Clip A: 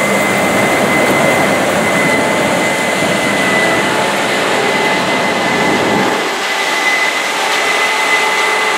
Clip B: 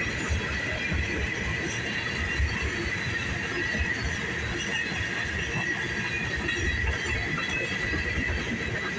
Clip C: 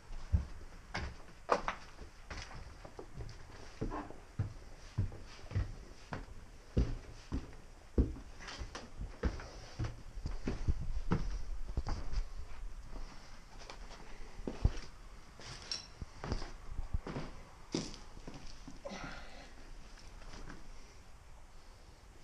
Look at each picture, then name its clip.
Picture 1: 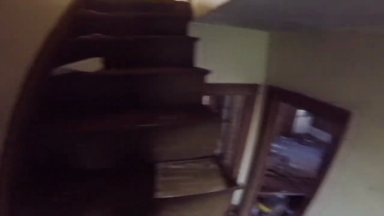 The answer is C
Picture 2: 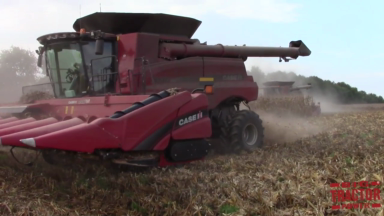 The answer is A